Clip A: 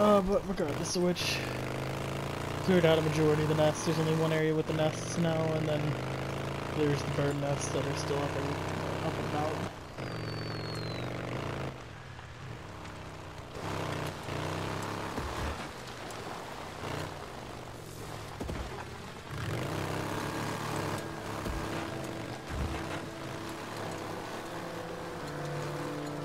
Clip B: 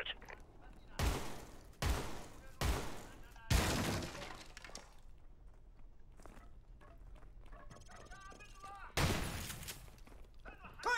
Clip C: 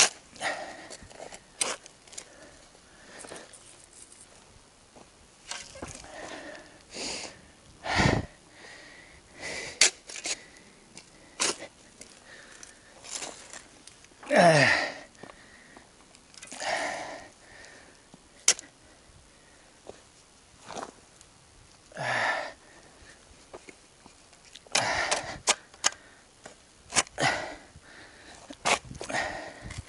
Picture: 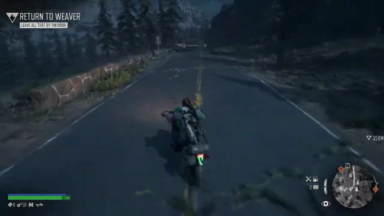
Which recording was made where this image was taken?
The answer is A